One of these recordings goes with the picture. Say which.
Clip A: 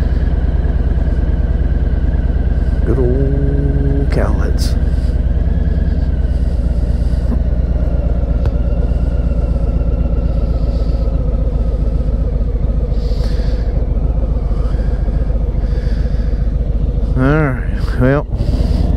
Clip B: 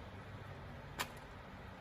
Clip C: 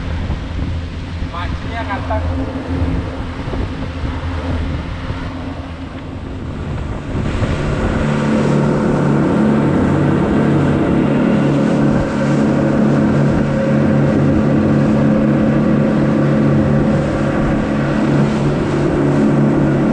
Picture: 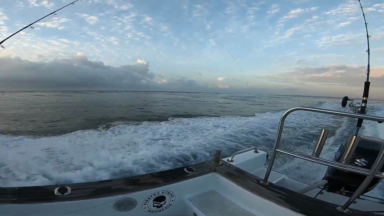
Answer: C